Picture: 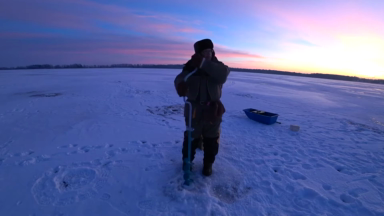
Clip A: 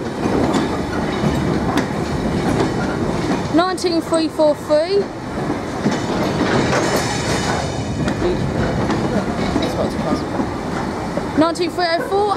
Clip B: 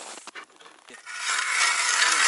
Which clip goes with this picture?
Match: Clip B